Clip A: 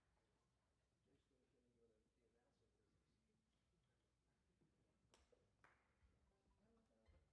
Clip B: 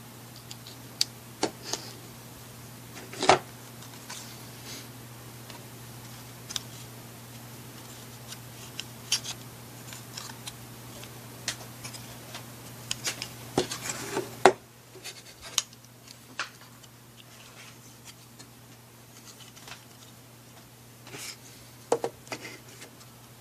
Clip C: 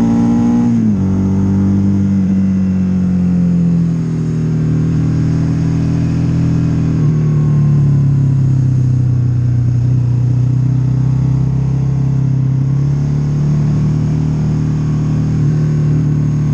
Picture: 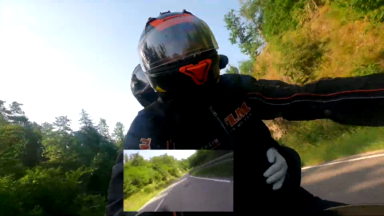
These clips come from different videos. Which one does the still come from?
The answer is C